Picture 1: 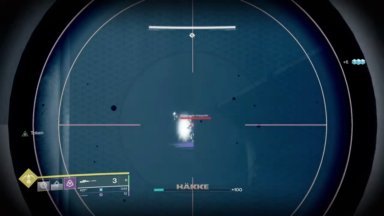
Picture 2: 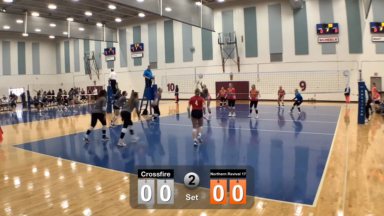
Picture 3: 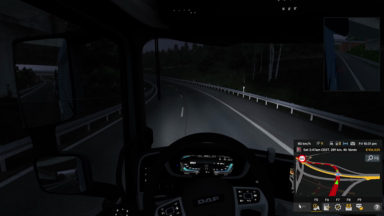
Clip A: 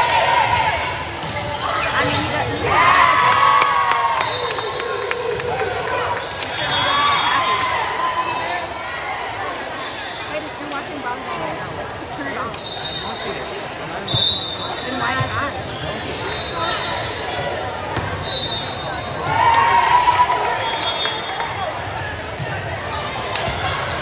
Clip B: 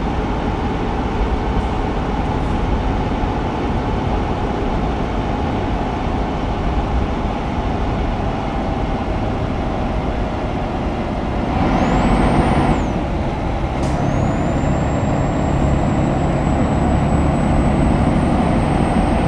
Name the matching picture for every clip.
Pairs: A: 2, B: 3